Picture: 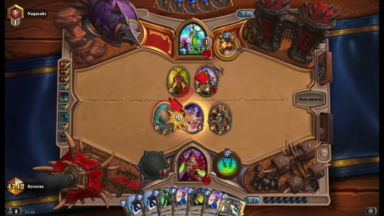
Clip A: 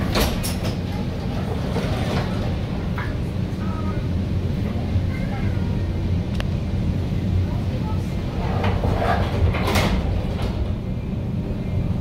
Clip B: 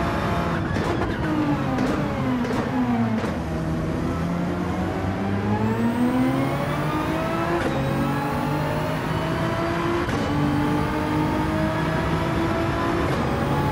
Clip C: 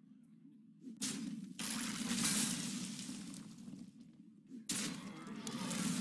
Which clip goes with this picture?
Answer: C